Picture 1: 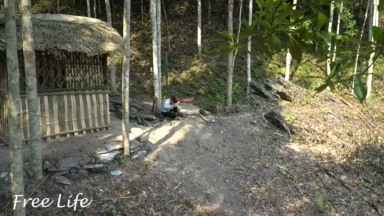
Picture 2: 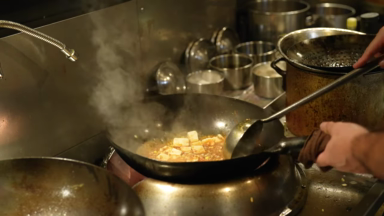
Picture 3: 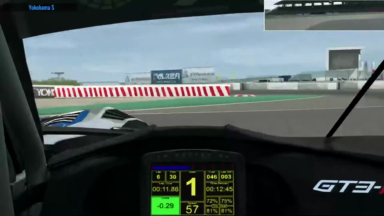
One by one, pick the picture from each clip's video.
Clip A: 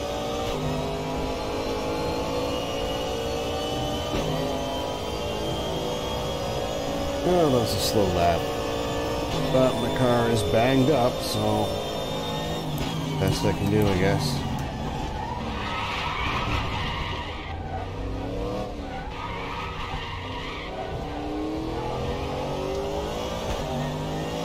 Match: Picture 3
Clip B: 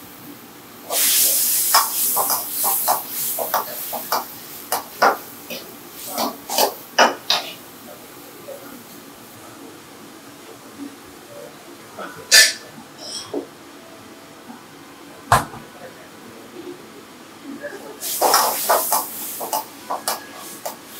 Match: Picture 2